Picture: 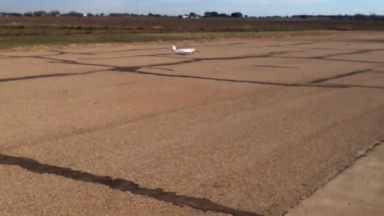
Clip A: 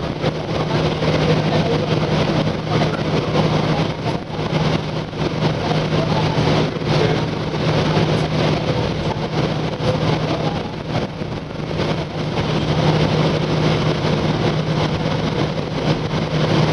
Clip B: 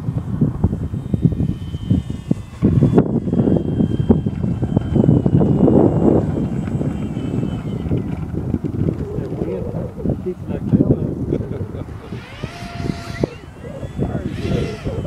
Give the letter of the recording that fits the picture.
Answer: B